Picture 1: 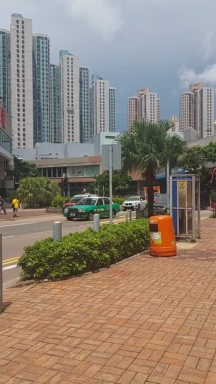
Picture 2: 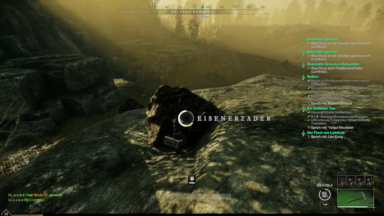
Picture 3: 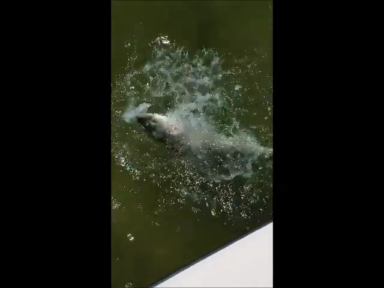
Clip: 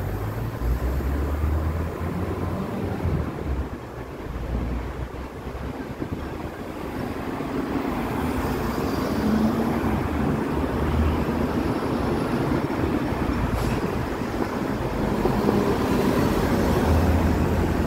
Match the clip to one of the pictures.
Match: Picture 1